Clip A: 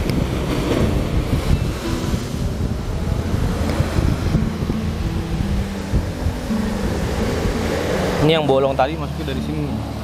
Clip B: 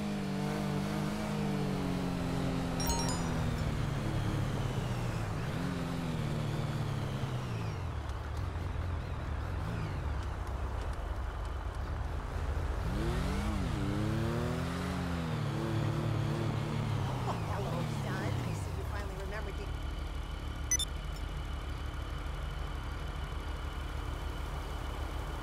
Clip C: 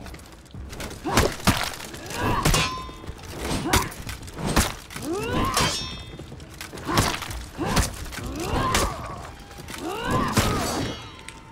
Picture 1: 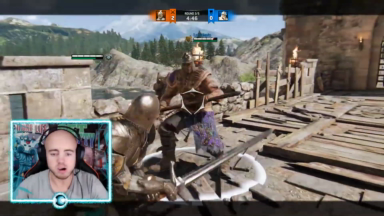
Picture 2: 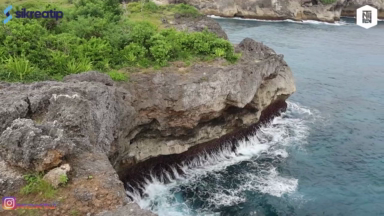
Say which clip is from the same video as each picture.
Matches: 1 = C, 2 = A